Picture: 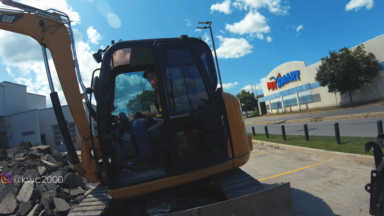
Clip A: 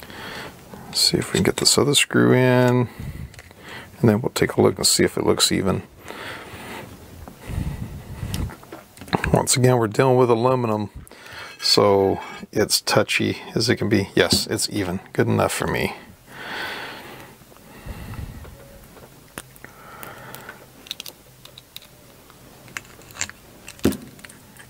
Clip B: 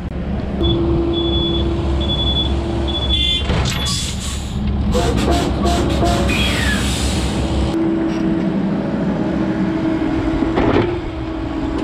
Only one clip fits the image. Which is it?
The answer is B